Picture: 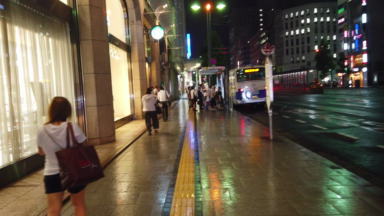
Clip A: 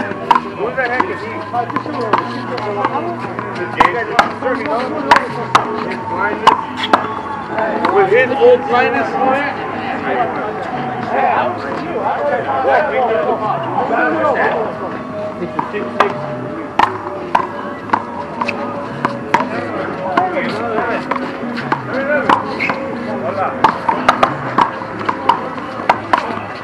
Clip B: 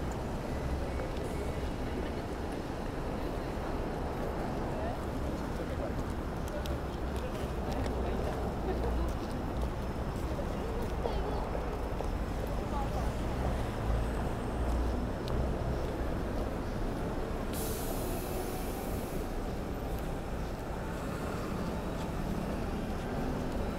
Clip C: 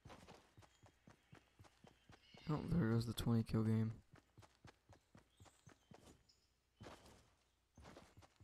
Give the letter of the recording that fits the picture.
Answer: B